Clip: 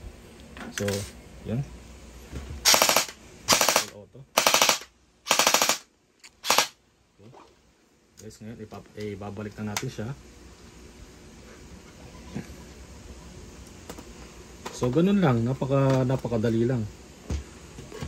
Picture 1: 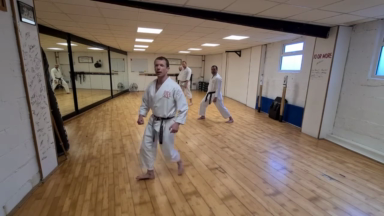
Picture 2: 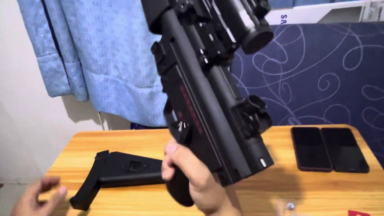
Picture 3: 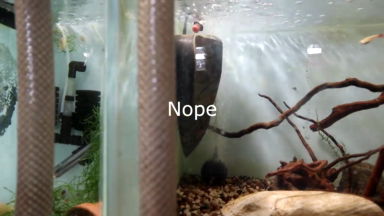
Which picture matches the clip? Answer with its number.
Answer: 2